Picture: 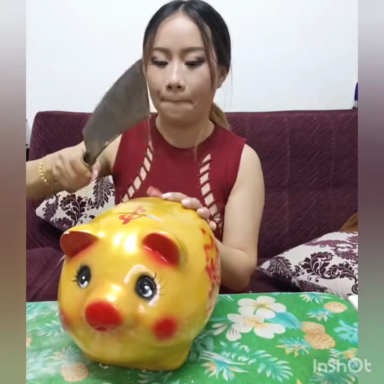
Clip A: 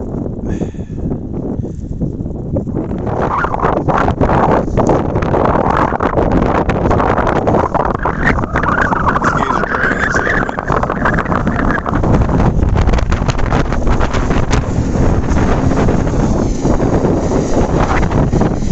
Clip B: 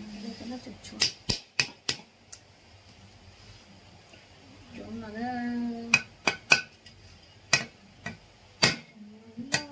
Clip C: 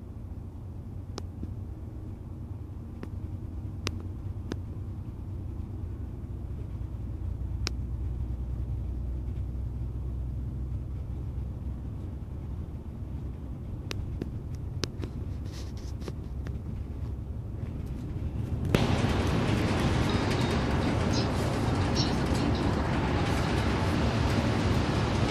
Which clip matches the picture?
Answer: B